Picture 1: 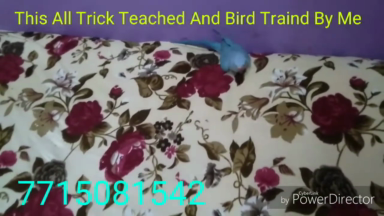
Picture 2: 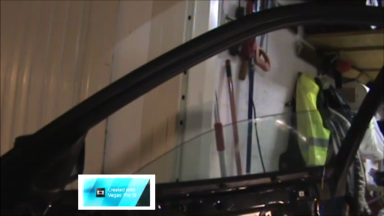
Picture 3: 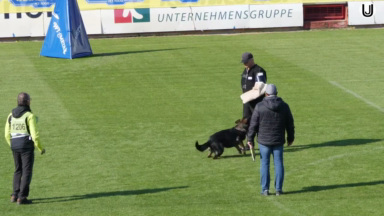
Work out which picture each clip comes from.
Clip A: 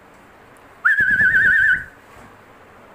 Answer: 1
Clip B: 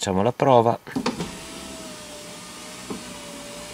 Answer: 2